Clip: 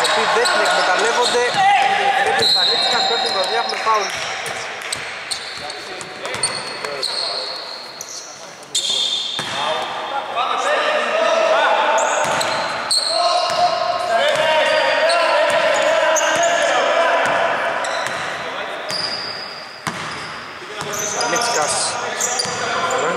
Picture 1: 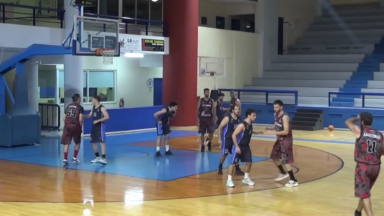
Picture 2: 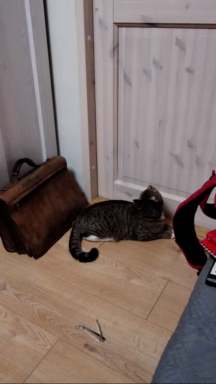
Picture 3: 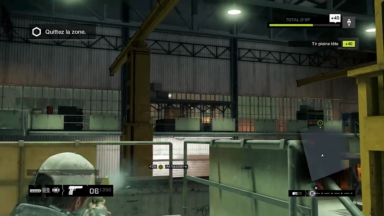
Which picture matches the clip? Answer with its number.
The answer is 1